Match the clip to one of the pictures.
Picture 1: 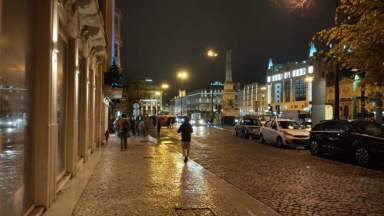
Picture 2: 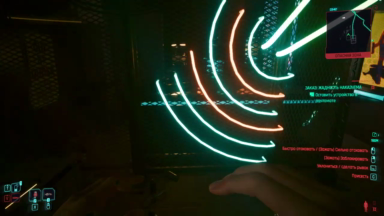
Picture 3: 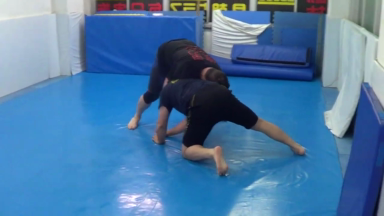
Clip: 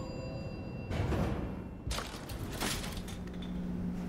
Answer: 2